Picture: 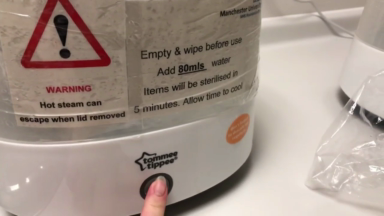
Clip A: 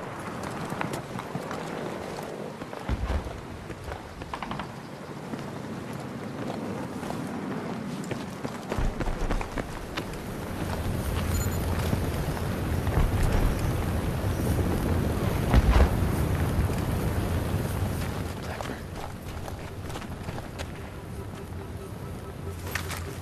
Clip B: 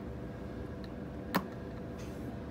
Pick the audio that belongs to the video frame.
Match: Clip B